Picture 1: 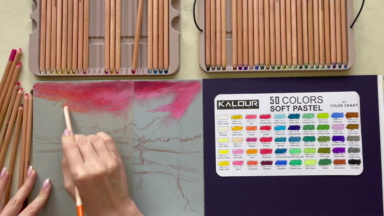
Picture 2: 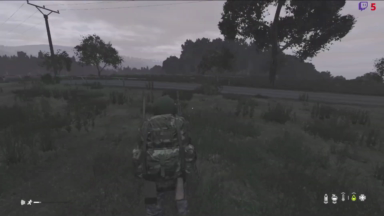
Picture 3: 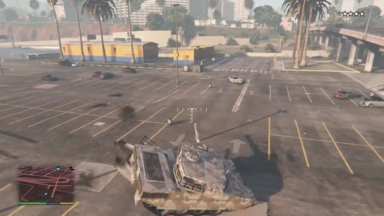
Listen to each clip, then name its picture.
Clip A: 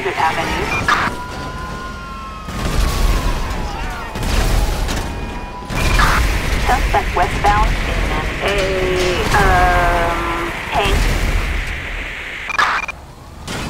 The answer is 3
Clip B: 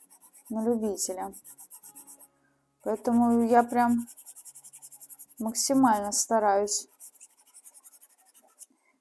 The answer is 1